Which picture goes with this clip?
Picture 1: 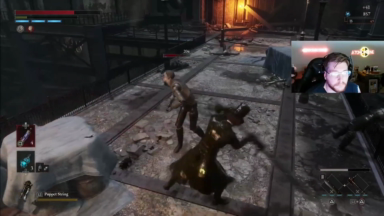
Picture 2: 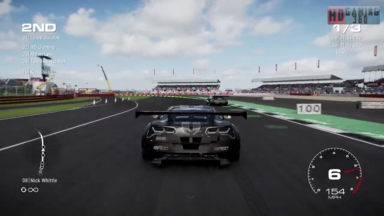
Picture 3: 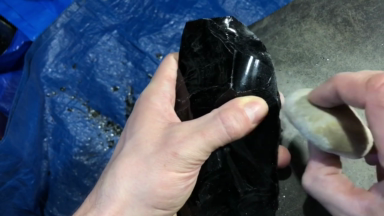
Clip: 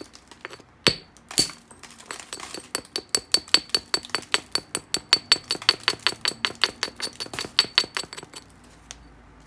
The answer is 3